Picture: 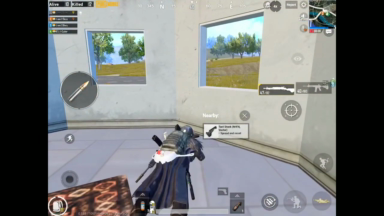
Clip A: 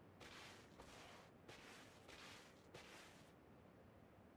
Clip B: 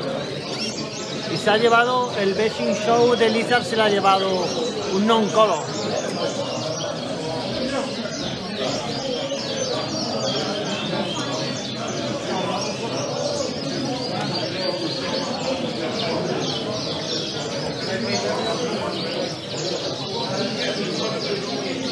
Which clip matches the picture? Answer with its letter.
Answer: A